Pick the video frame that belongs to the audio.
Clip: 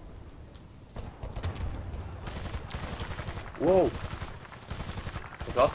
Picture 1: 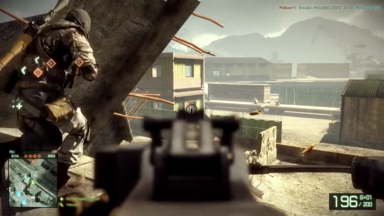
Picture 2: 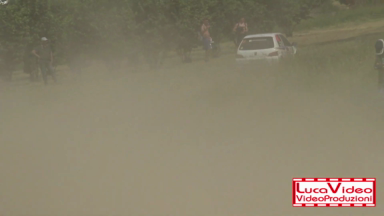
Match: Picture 1